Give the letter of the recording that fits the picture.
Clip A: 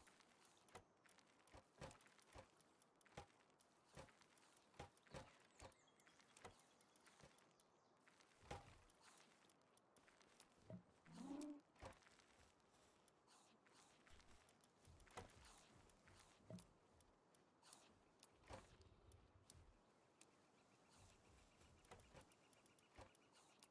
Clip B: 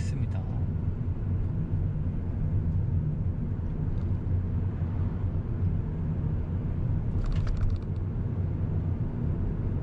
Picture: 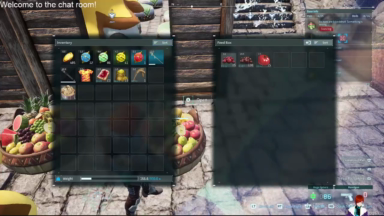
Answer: A